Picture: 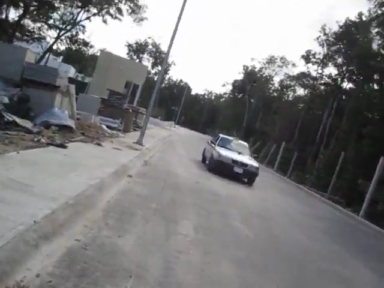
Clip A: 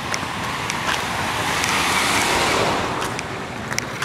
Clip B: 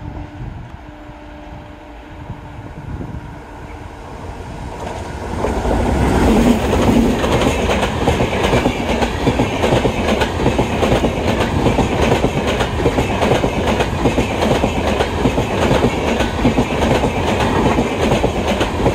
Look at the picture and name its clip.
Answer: A